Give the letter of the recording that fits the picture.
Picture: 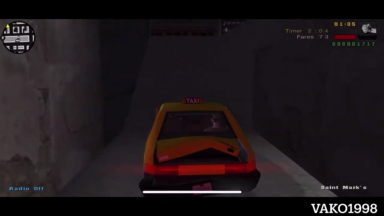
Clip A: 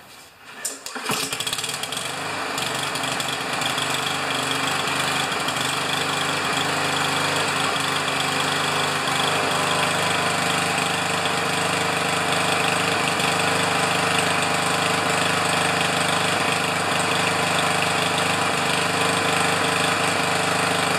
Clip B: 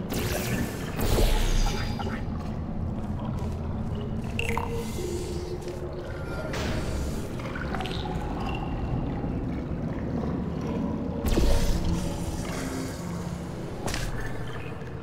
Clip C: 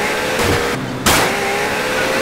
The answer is C